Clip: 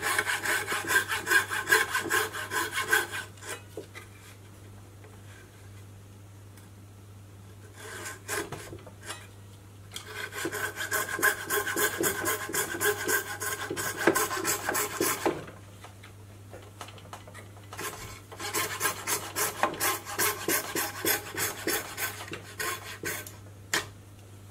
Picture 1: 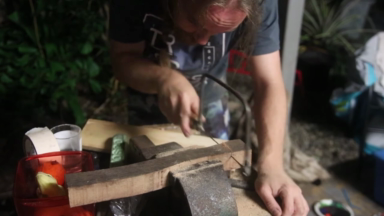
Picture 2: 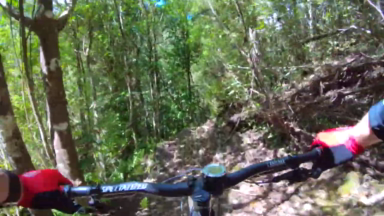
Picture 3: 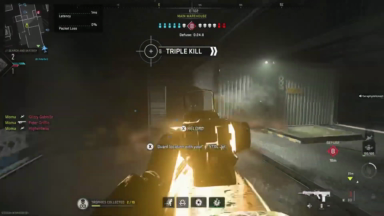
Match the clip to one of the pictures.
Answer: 1